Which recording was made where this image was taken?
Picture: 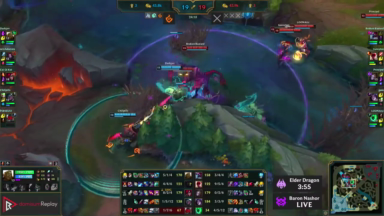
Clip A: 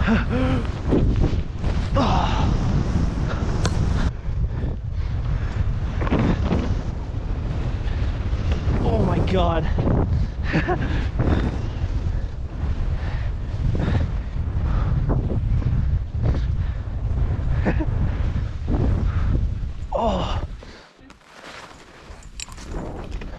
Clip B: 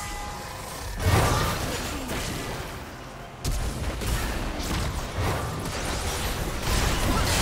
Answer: B